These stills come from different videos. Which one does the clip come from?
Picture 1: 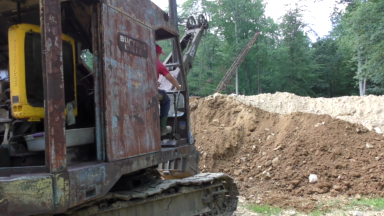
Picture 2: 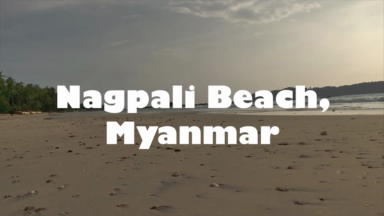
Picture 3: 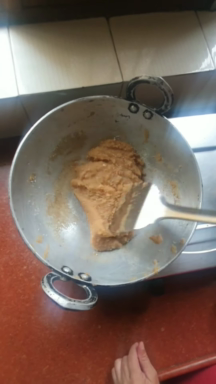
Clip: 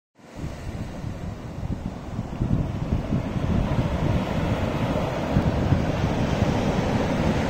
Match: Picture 2